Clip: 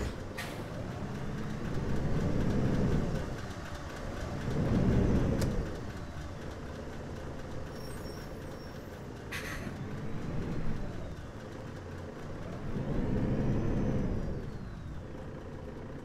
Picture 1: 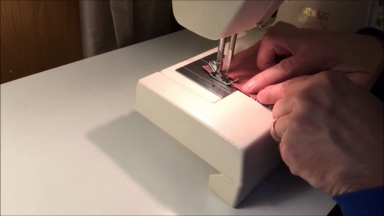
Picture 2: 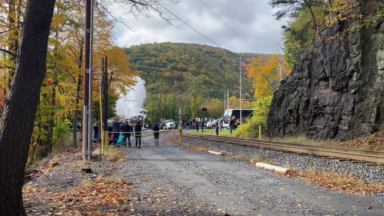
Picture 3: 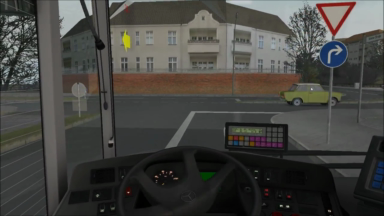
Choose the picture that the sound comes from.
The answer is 3